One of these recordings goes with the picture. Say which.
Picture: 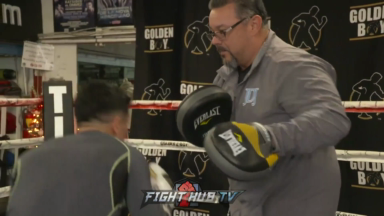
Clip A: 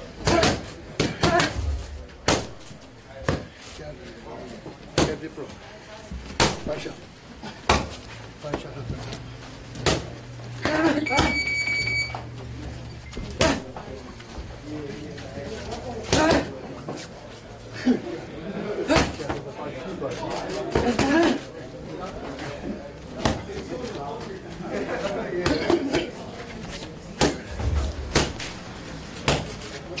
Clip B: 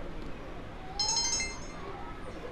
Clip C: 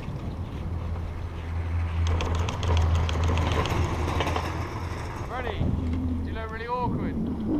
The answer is A